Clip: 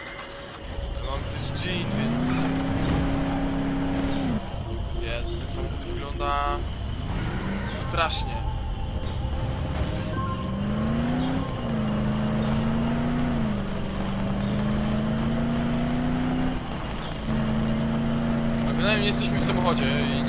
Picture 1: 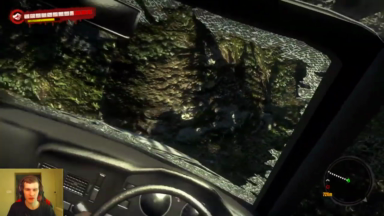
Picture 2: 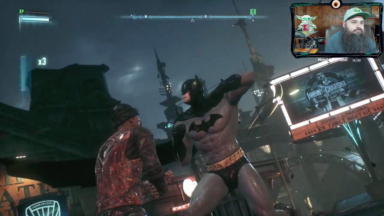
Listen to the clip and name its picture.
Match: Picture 1